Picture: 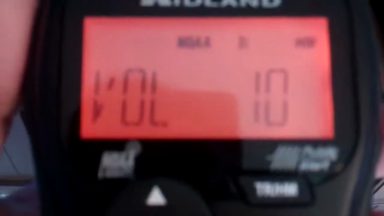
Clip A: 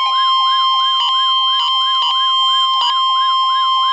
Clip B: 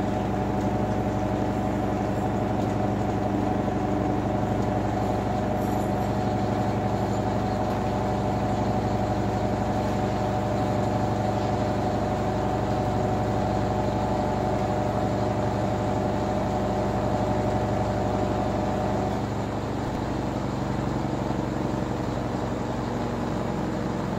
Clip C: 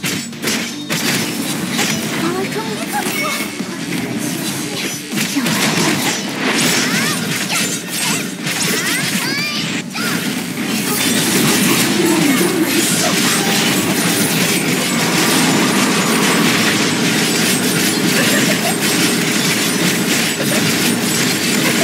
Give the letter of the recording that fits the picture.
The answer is A